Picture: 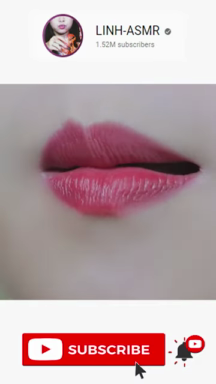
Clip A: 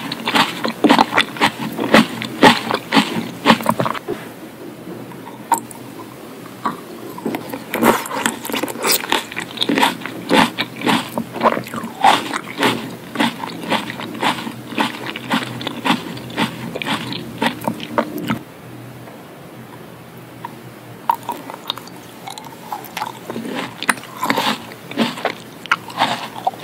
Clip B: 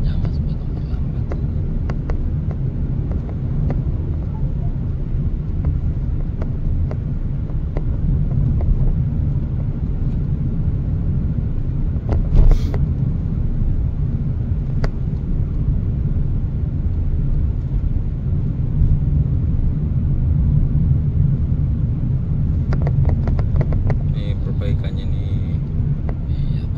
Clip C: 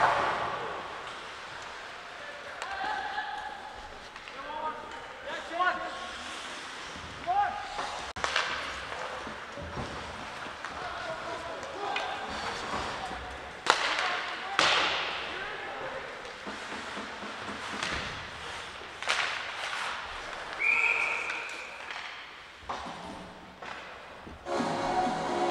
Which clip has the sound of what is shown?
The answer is A